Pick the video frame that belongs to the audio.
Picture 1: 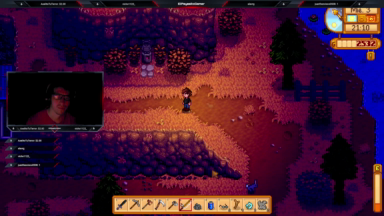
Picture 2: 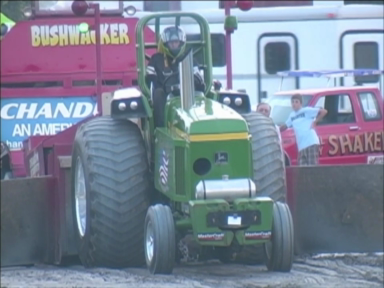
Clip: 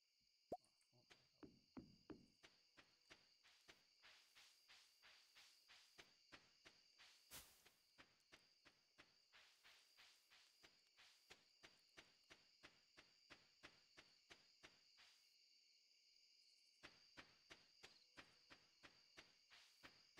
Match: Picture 1